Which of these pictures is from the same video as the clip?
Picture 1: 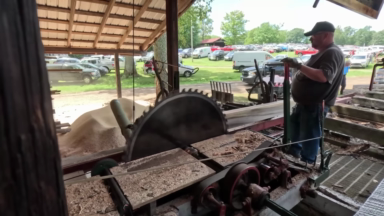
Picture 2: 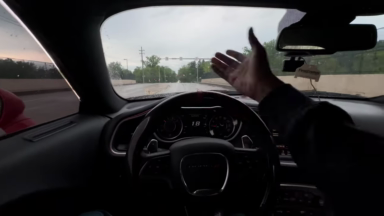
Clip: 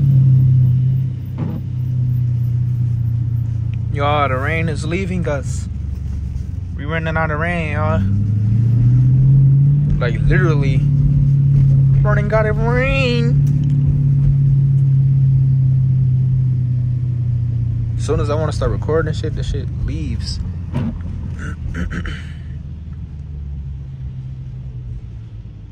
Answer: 2